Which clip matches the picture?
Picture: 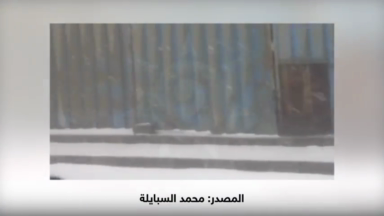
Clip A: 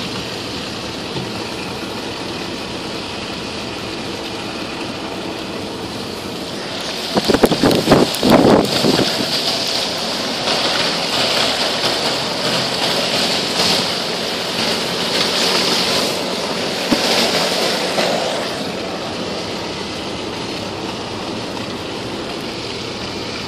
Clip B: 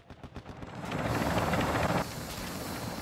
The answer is A